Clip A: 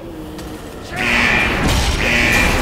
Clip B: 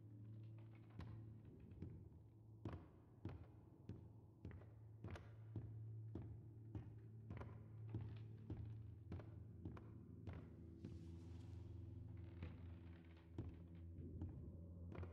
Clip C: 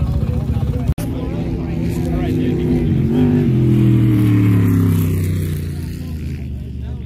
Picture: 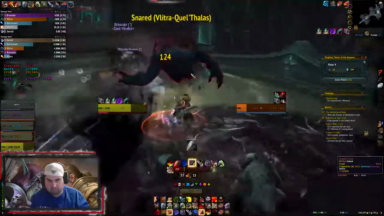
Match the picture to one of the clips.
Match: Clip A